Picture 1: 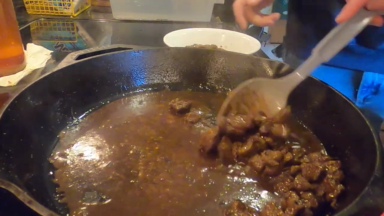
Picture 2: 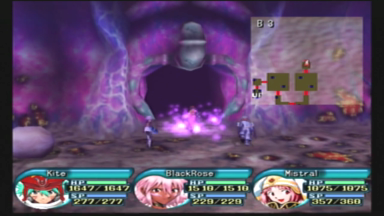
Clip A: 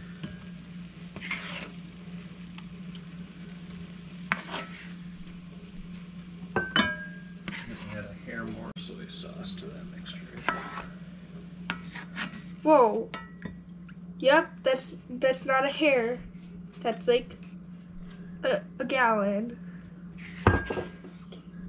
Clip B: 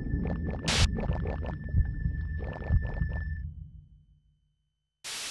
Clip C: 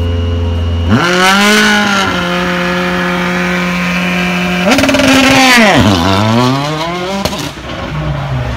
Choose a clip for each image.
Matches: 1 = A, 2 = B